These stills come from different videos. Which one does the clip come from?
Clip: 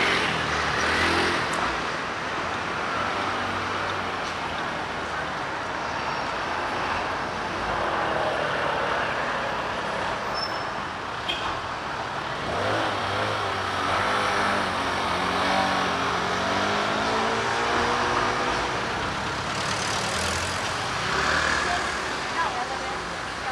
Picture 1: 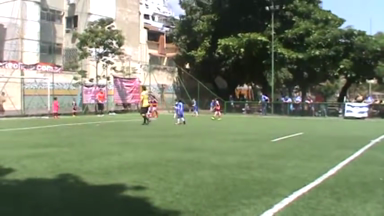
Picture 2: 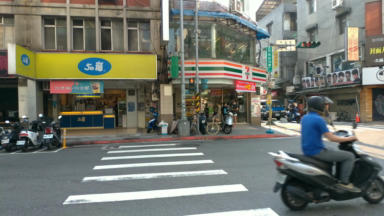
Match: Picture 2